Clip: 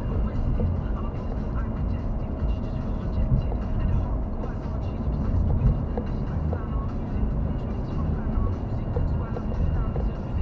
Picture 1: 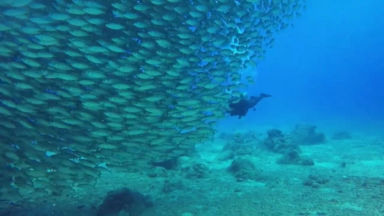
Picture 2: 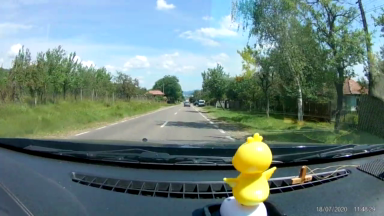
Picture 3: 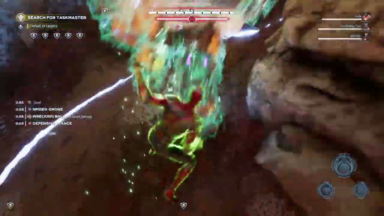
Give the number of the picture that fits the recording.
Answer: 2